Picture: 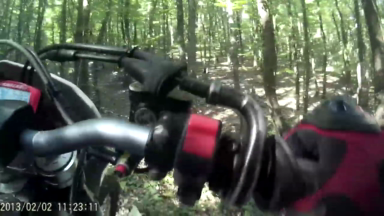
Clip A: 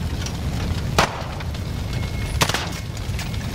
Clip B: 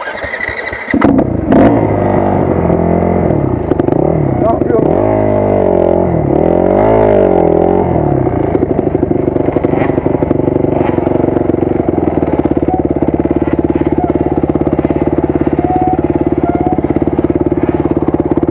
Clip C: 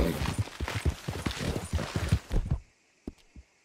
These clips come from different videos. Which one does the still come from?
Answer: B